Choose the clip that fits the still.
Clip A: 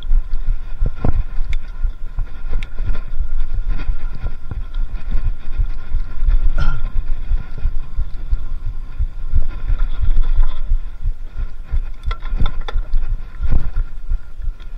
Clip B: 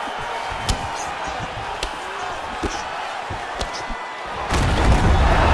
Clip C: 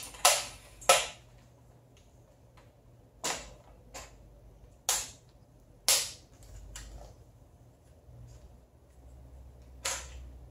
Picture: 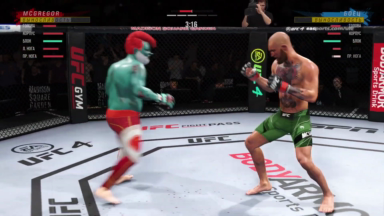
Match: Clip B